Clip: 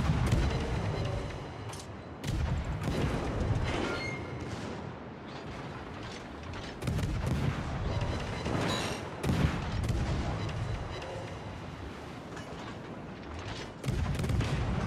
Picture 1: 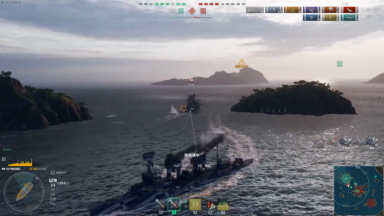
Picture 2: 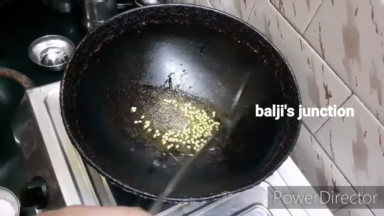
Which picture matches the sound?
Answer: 1